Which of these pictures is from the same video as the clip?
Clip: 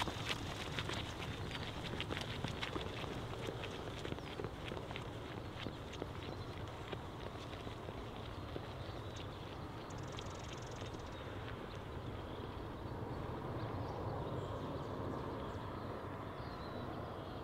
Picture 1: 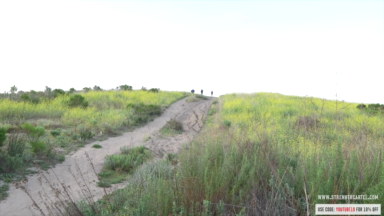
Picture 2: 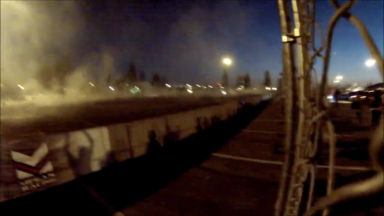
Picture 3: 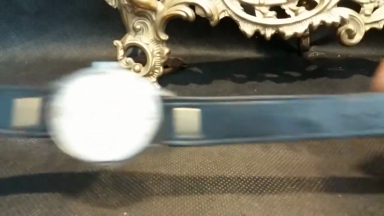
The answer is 1